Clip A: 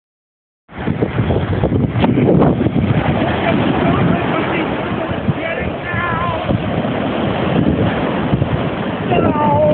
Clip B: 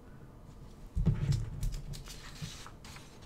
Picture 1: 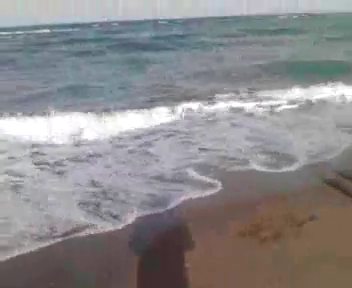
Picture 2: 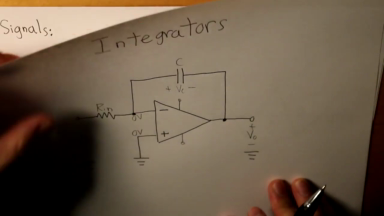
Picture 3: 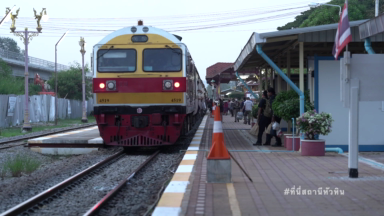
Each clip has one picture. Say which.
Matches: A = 1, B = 2